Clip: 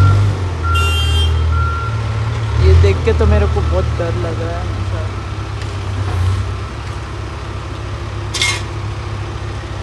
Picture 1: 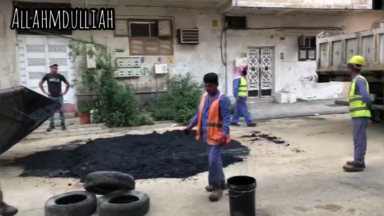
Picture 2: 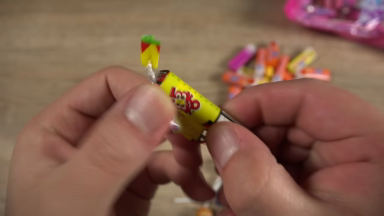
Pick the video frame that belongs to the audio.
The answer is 1